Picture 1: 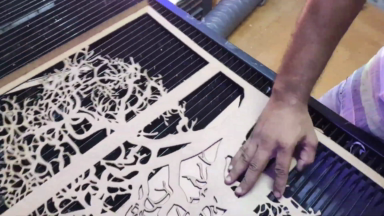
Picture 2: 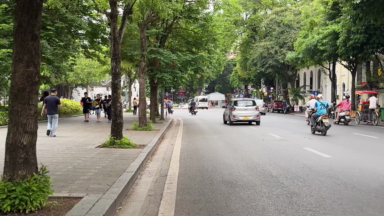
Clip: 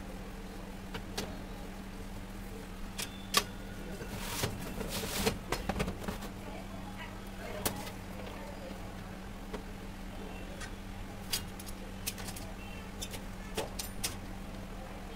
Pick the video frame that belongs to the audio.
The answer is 1